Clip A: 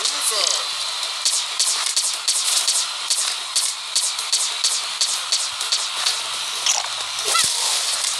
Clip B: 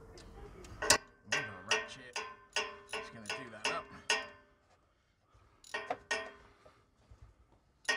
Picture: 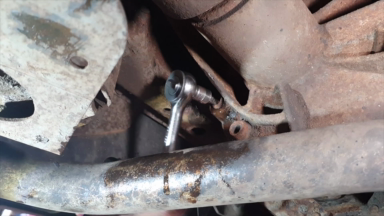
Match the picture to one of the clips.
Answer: B